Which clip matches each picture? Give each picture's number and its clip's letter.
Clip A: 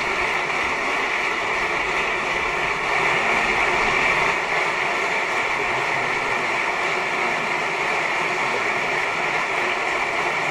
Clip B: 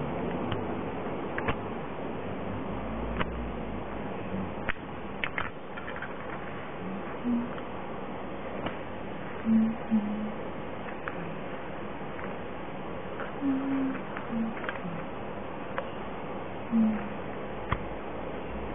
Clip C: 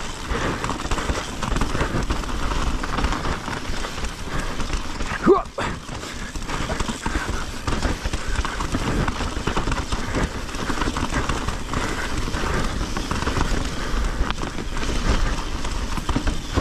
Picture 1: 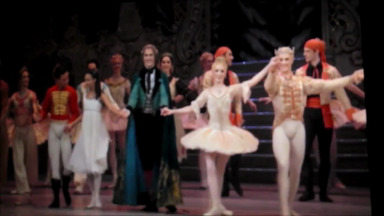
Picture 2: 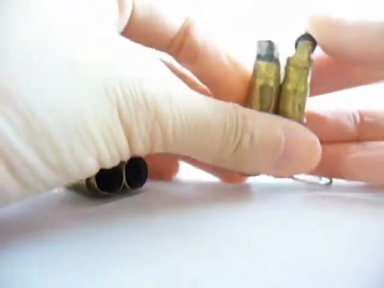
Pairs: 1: A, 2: B